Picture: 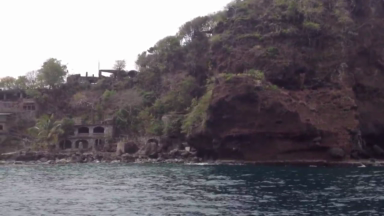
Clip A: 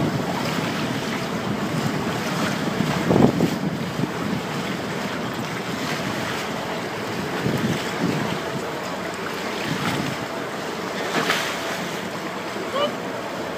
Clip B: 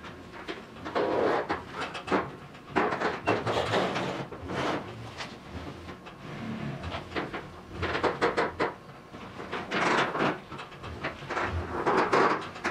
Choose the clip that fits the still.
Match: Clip A